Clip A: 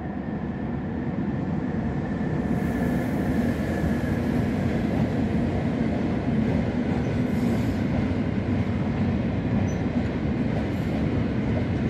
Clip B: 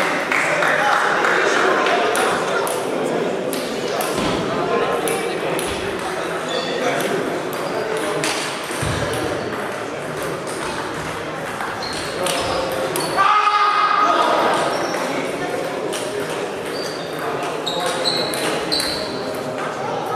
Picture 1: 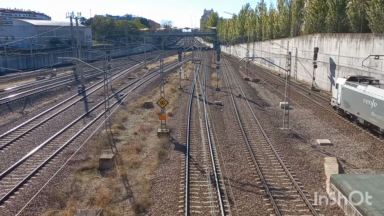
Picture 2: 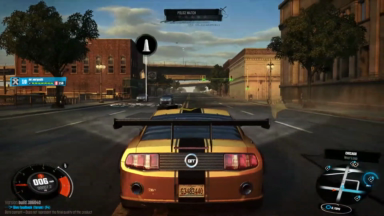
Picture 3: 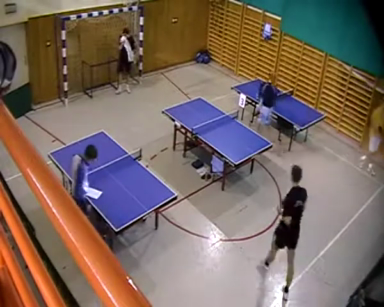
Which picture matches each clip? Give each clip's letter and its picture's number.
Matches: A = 1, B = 3